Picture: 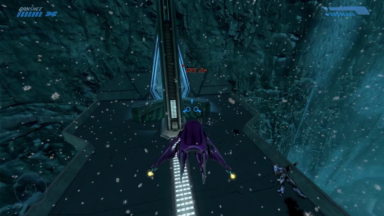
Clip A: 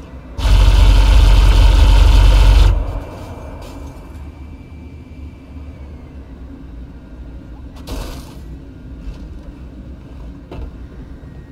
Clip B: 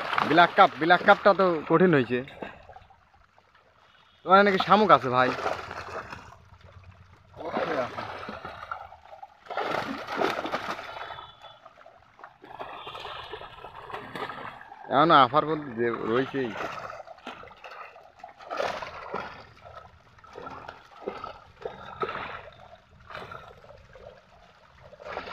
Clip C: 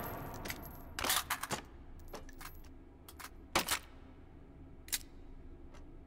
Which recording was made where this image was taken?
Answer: A